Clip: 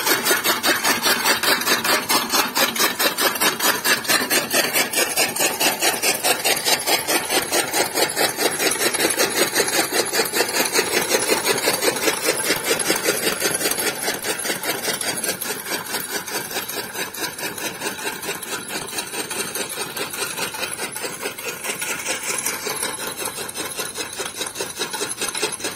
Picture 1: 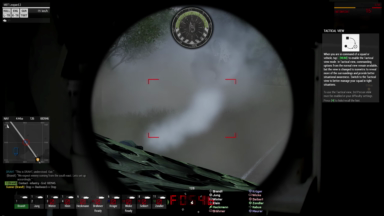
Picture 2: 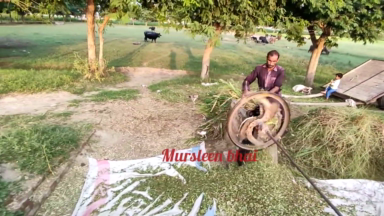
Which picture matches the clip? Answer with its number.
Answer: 2